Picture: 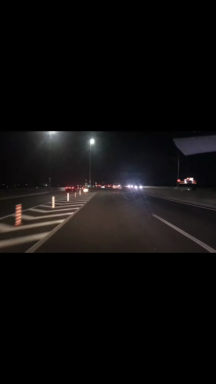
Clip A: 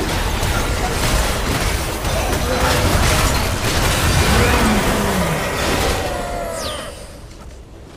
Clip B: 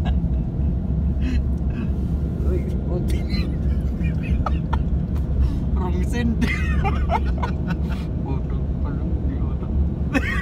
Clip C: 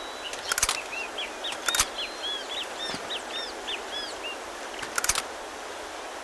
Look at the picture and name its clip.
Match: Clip B